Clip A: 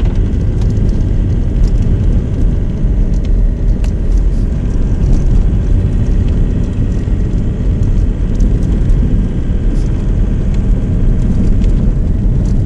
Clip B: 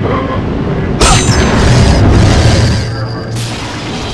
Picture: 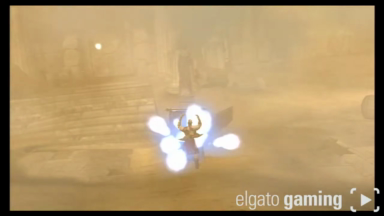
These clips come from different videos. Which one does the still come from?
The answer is B